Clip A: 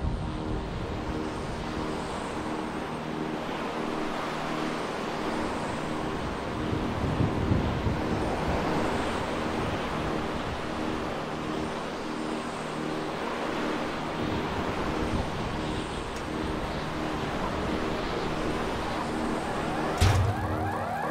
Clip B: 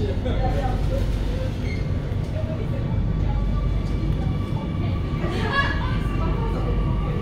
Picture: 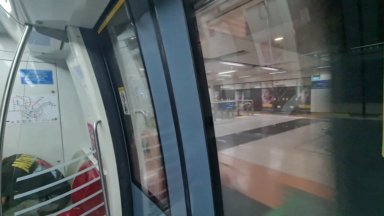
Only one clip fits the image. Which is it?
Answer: B